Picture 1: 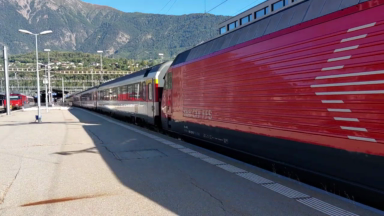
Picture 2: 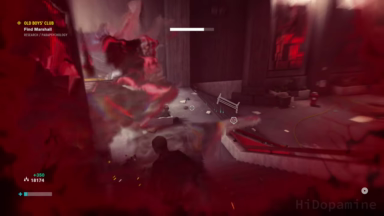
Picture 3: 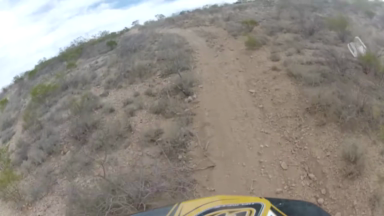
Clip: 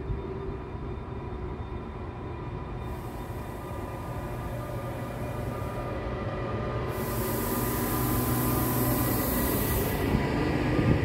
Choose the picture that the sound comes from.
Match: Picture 1